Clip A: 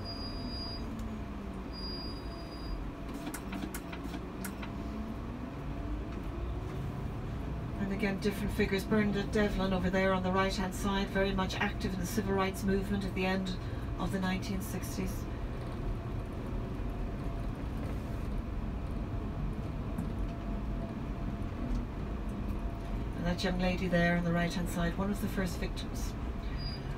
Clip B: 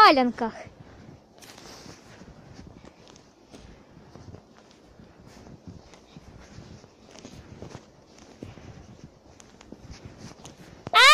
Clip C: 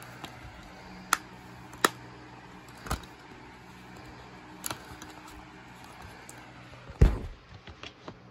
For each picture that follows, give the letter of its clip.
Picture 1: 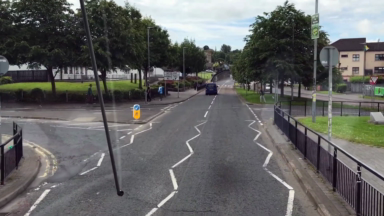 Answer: A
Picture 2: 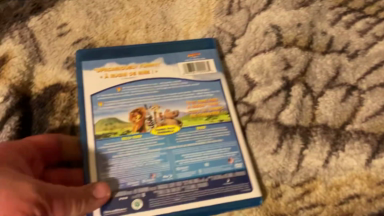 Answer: C